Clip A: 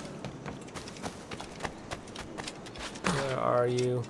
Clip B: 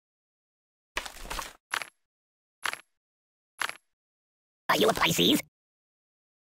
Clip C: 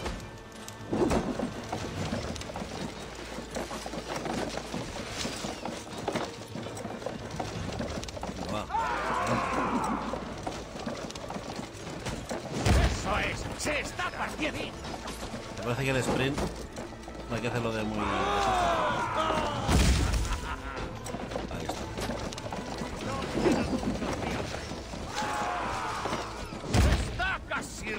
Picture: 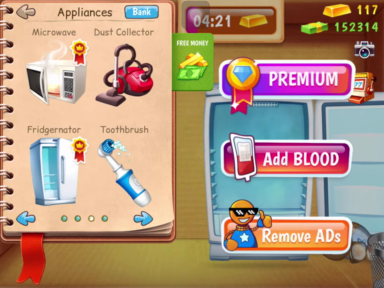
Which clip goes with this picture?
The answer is B